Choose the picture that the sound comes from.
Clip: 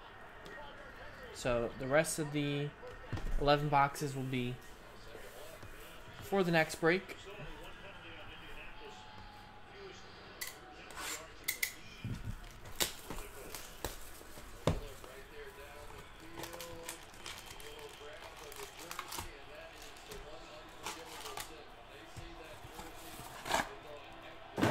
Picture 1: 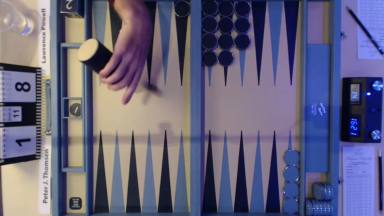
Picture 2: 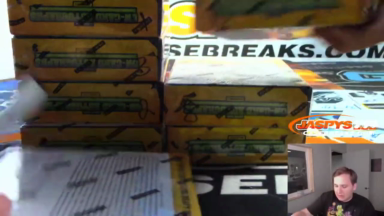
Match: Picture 2